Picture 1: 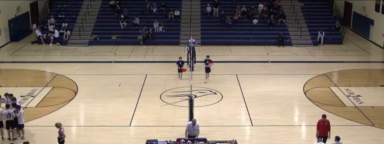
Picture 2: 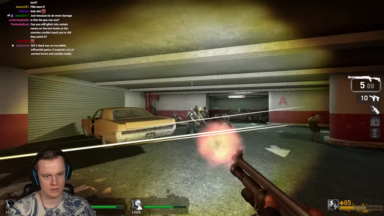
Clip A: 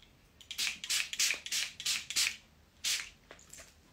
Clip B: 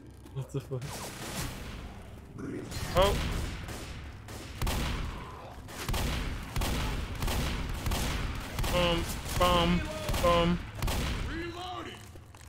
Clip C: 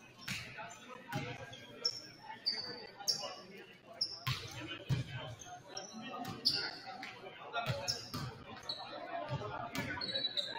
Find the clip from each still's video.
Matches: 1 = C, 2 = B